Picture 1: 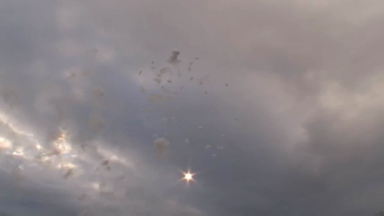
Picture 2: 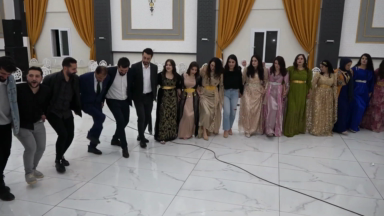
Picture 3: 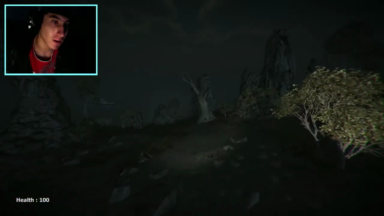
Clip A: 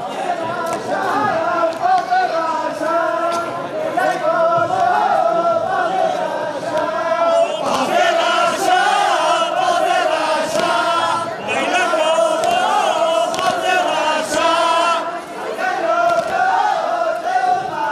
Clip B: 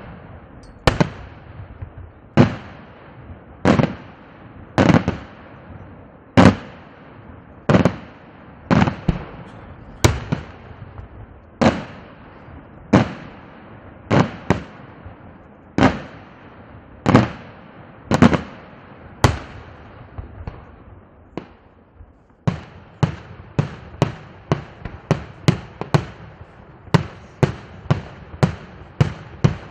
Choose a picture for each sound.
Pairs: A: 2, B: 1